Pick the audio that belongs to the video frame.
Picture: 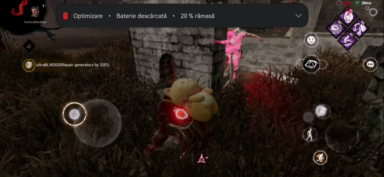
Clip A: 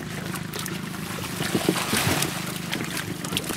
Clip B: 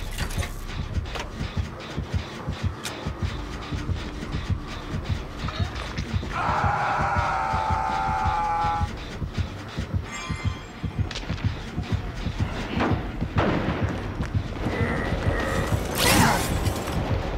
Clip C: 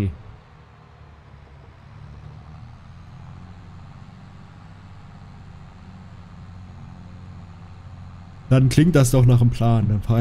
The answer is B